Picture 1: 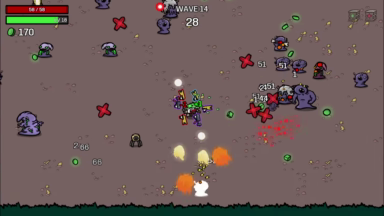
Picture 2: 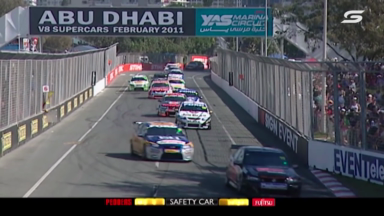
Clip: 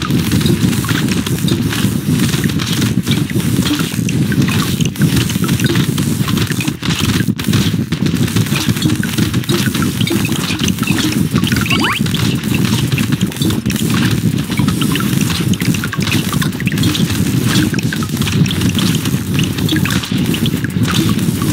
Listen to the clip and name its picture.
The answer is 1